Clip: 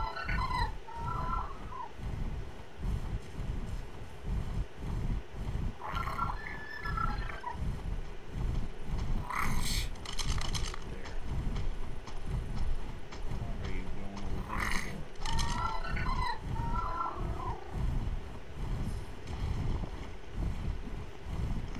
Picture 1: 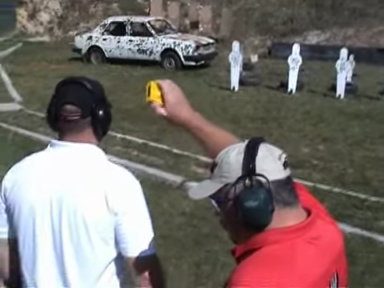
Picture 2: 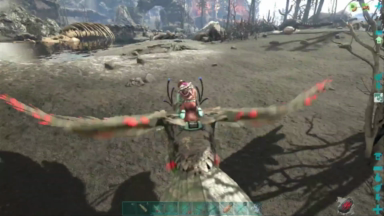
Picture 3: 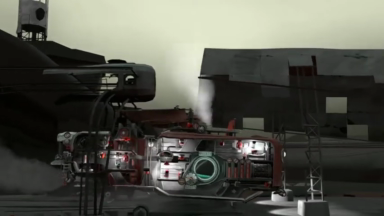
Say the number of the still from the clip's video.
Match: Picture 2